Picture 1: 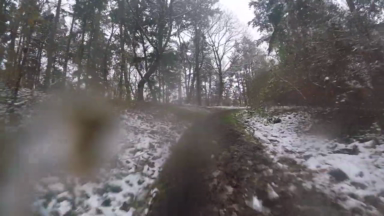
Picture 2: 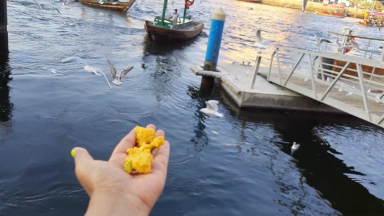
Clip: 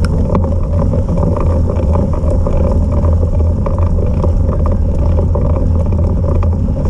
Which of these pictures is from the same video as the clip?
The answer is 1